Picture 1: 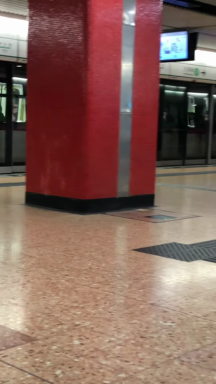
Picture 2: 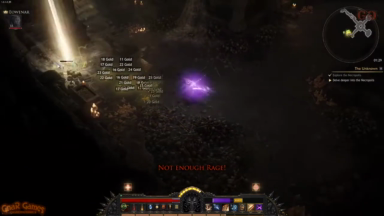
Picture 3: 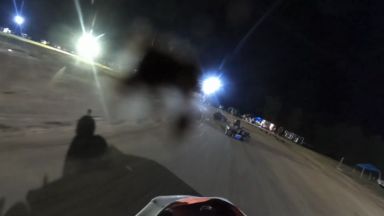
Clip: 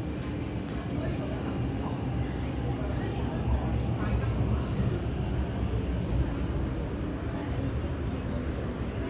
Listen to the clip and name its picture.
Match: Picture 1